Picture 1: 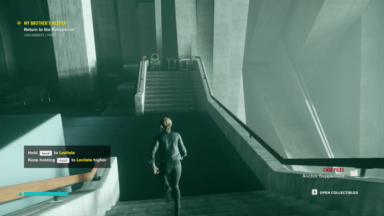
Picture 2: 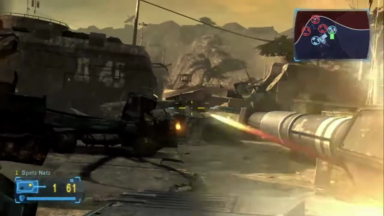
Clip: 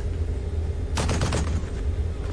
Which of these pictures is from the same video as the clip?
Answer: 2